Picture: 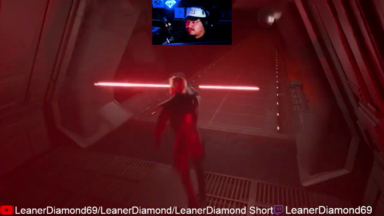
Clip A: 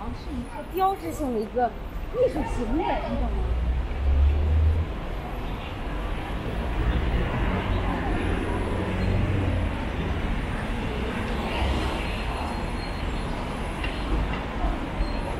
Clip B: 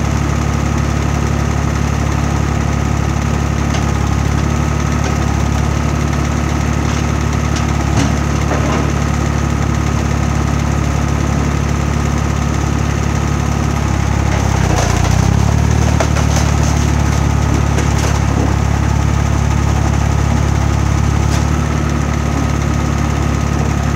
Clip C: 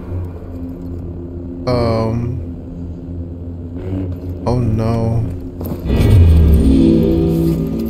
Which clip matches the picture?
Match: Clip C